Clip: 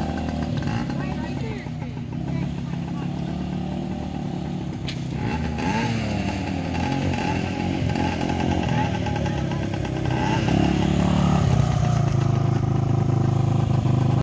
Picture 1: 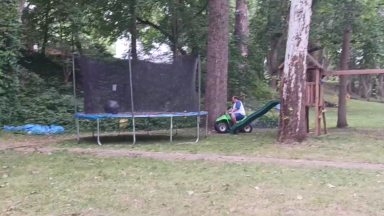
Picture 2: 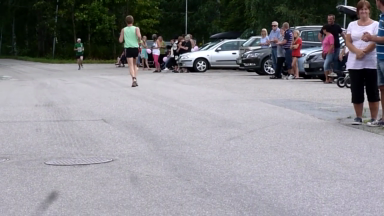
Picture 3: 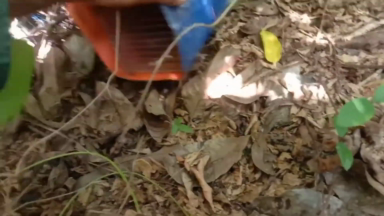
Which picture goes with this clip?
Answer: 1